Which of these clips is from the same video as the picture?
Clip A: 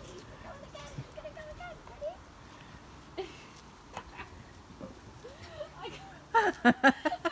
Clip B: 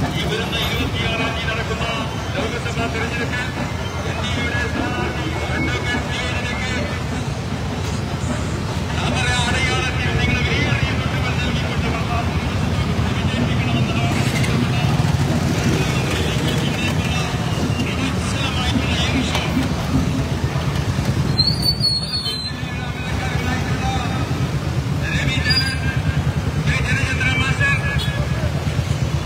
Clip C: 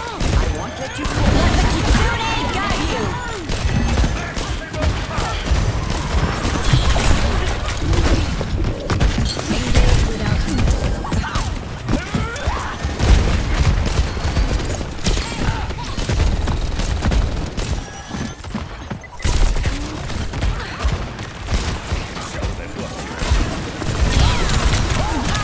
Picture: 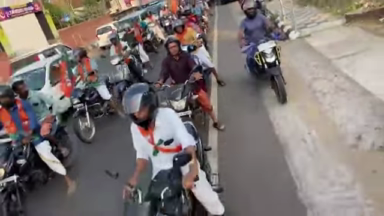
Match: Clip B